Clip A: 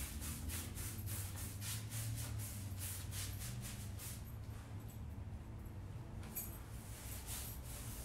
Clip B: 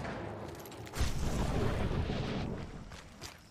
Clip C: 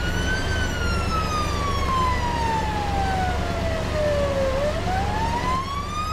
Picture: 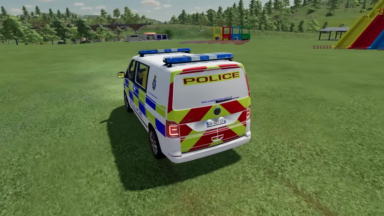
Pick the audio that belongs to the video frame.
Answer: C